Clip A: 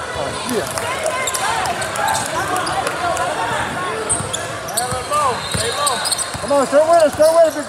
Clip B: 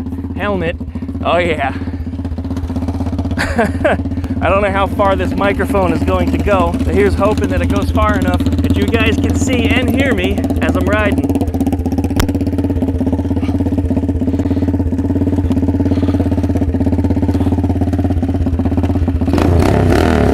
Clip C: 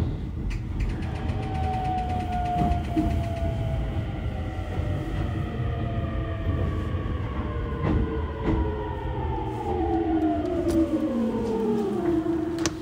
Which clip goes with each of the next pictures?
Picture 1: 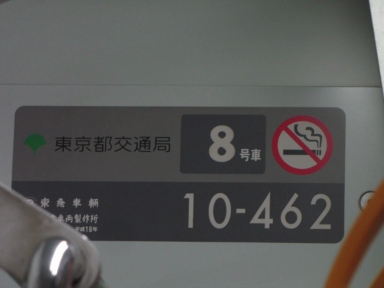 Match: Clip C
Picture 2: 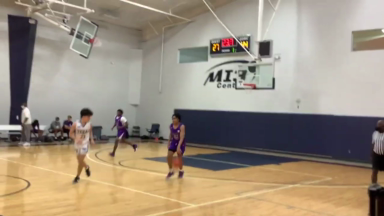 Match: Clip A